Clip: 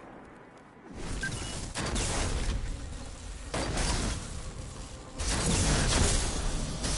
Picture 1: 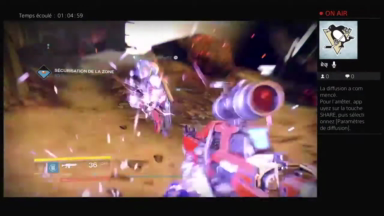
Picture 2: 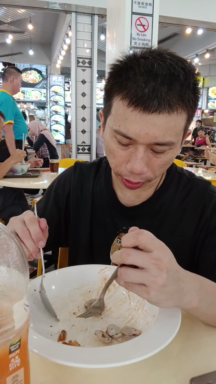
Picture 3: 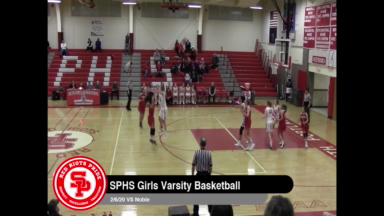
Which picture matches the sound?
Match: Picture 1